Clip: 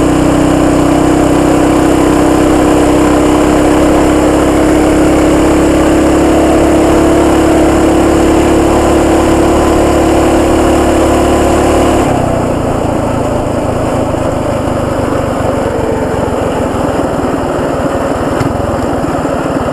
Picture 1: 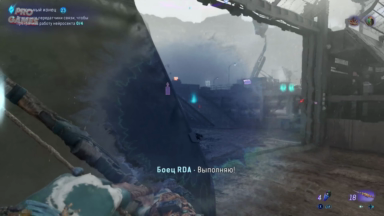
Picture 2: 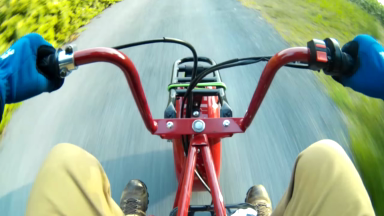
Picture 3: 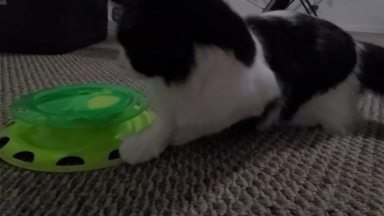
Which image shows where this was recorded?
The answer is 2